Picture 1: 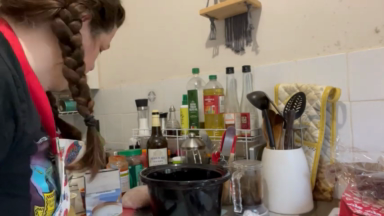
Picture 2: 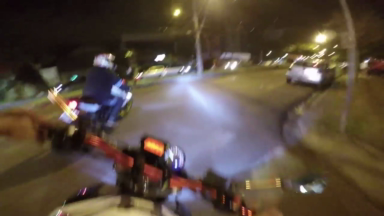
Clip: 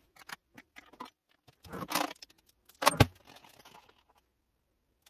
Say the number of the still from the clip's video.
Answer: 1